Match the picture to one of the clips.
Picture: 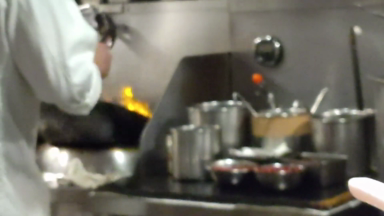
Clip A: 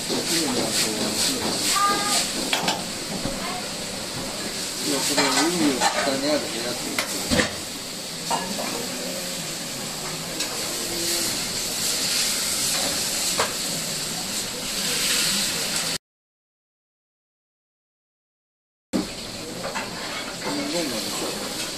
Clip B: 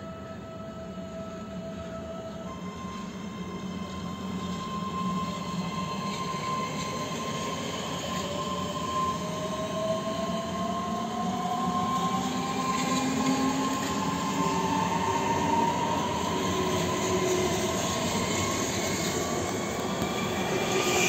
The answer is A